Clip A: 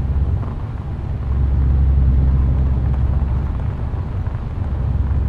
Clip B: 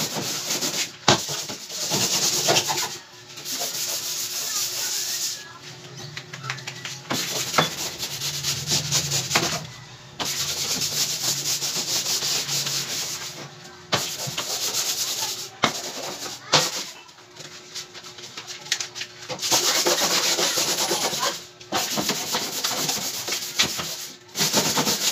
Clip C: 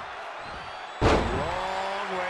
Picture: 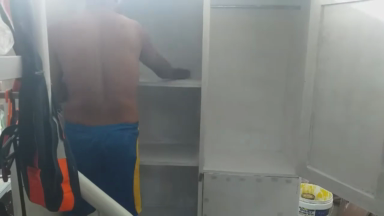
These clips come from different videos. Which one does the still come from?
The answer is B